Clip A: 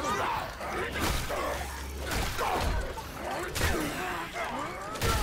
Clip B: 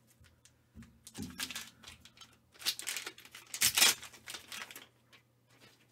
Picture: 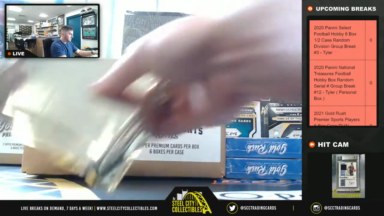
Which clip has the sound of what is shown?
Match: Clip B